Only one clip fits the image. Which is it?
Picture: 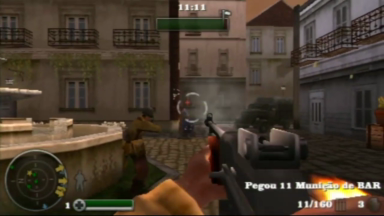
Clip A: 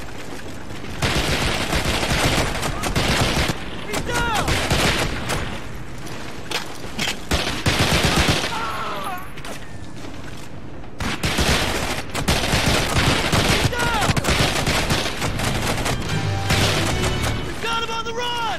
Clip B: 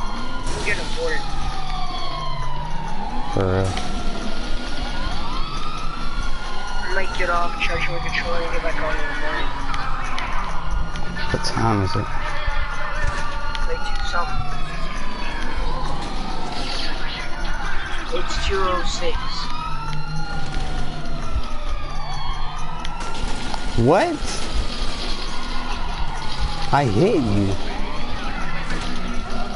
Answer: A